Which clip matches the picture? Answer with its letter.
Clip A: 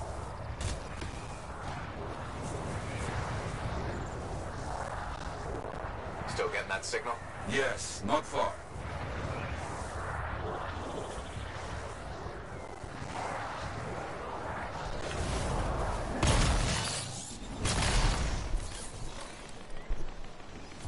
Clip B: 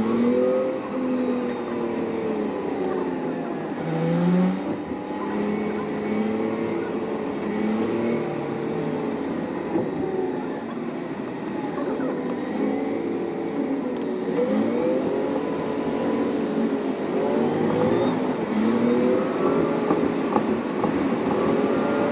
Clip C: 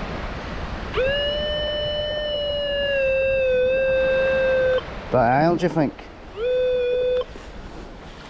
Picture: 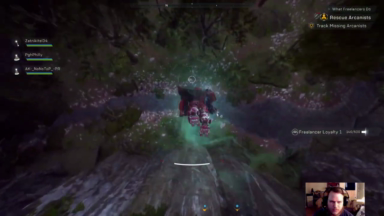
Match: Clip A